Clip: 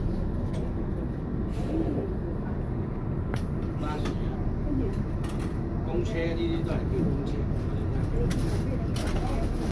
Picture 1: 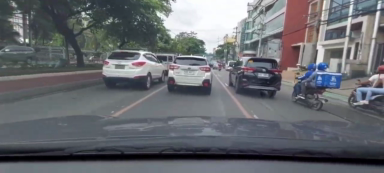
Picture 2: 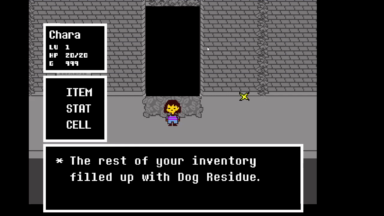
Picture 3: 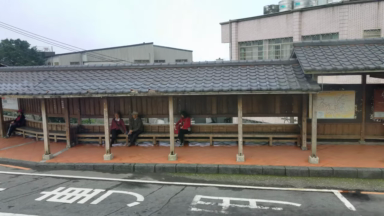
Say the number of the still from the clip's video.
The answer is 3